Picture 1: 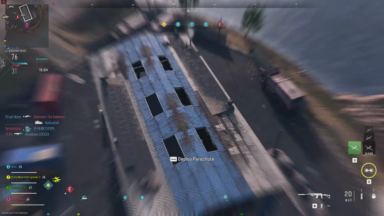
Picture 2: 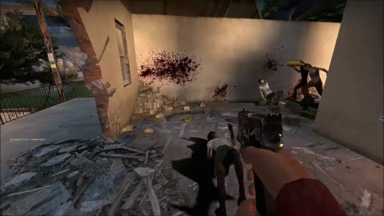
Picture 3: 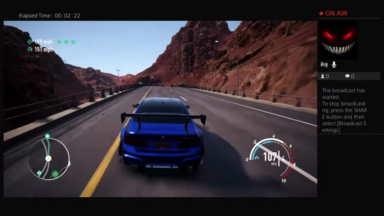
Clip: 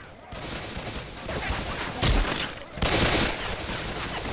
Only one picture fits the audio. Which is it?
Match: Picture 2